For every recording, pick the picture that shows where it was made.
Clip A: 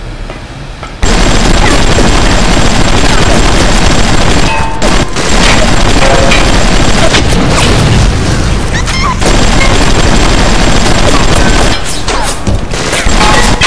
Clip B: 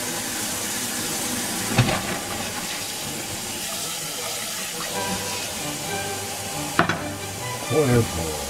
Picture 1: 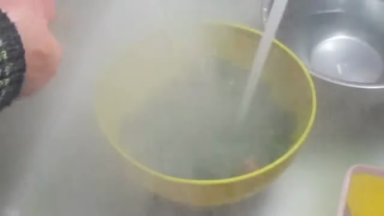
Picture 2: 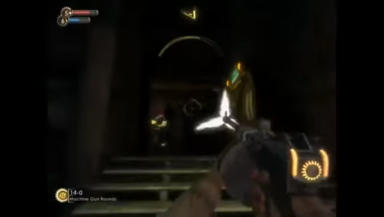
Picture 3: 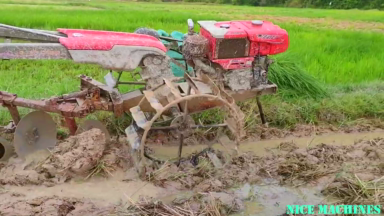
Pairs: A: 2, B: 1